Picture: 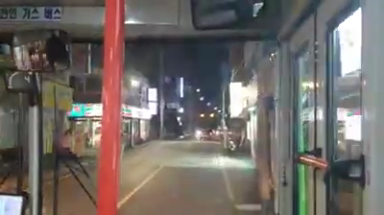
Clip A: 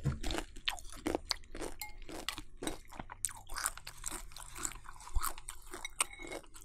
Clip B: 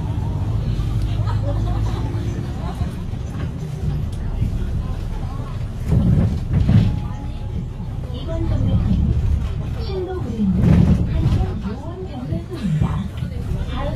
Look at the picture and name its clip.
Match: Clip B